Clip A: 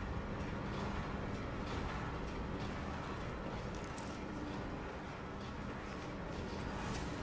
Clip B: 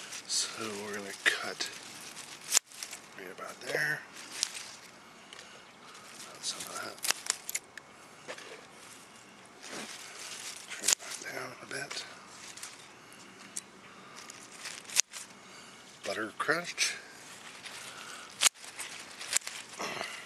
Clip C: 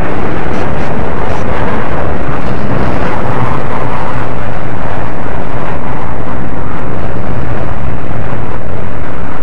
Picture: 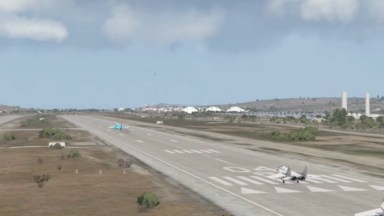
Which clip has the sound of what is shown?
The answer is C